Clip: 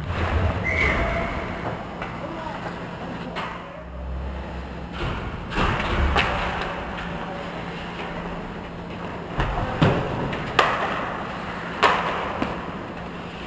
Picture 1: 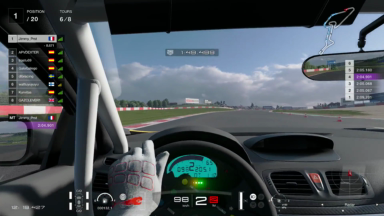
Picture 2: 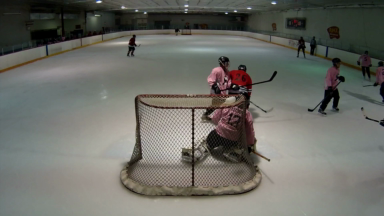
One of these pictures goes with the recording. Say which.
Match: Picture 2